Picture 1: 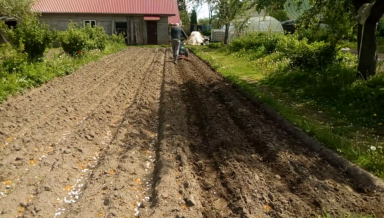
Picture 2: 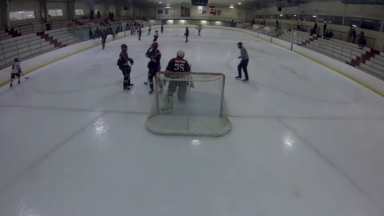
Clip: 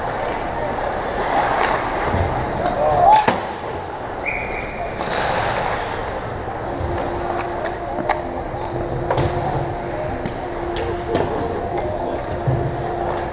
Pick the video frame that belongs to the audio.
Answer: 2